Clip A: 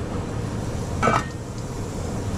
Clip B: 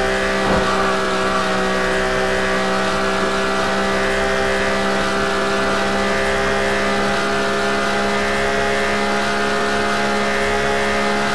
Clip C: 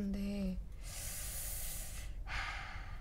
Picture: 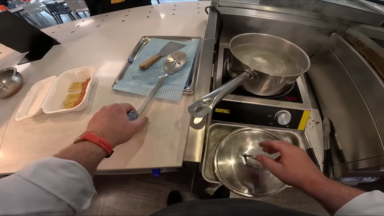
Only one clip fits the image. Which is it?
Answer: A